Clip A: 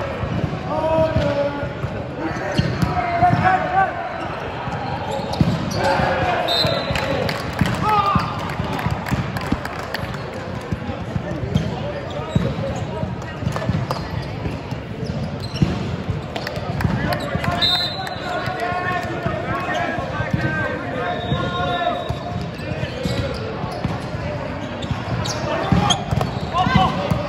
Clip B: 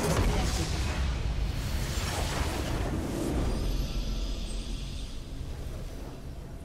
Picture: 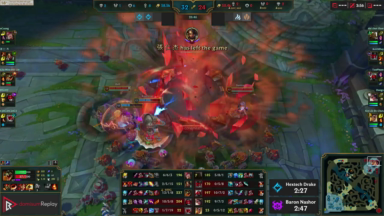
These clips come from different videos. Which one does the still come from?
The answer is B